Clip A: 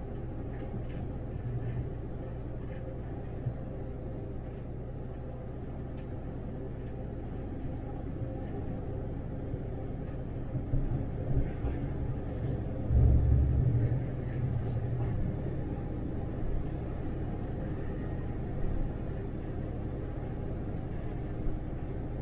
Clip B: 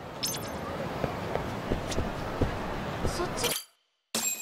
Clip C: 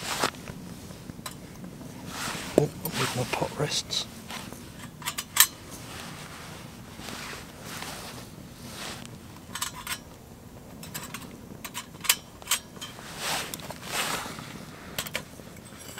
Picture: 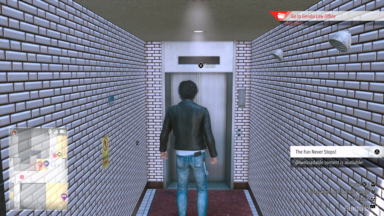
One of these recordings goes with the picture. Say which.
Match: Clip B